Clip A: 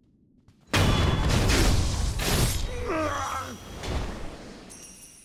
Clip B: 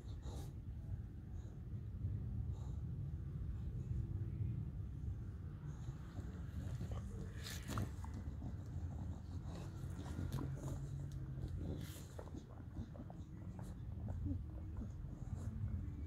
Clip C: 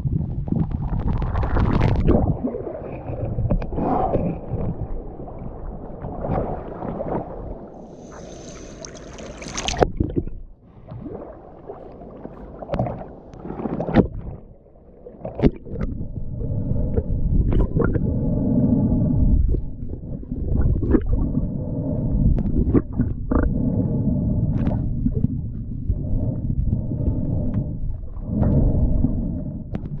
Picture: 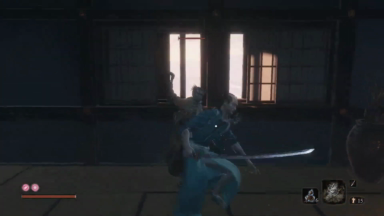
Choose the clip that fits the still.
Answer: A